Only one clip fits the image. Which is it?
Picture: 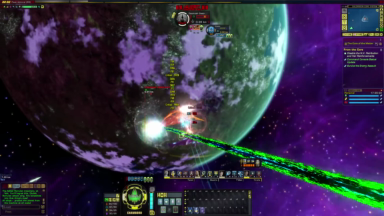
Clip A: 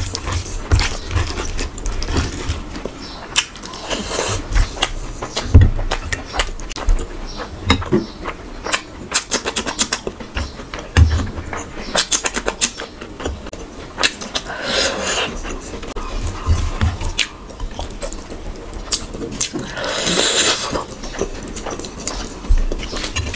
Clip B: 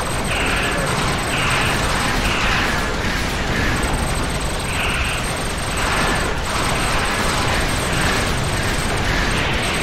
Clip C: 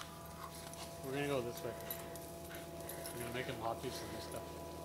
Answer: B